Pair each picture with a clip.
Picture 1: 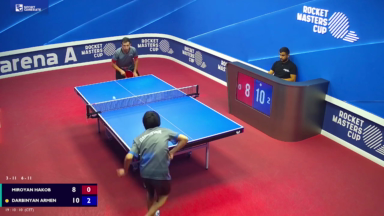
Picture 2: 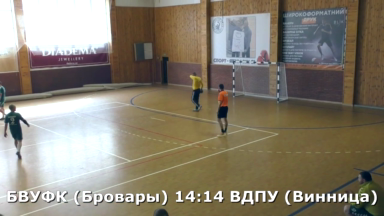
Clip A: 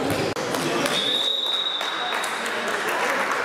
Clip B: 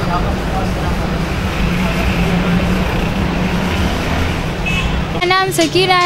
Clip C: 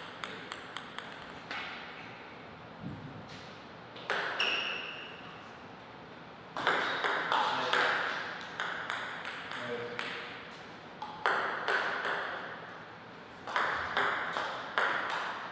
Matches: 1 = C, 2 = A